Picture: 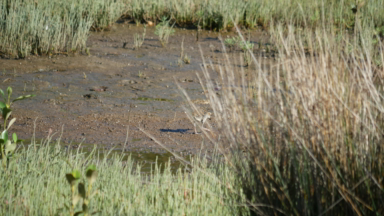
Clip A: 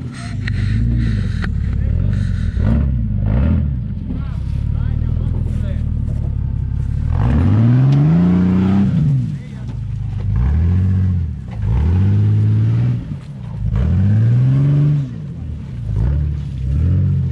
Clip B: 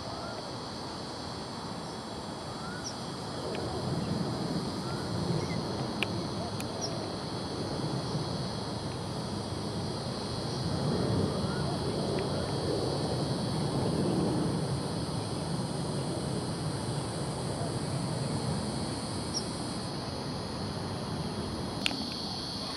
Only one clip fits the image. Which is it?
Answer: B